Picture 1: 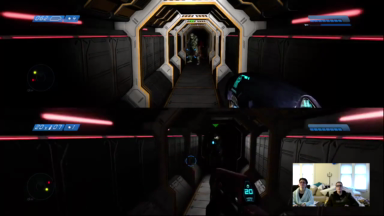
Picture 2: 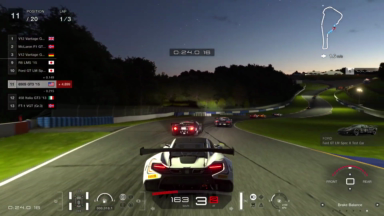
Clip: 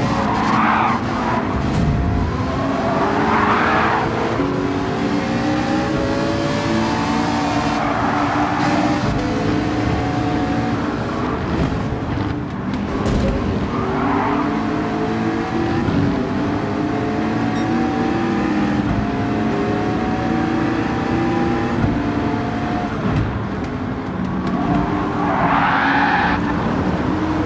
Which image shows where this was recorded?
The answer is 2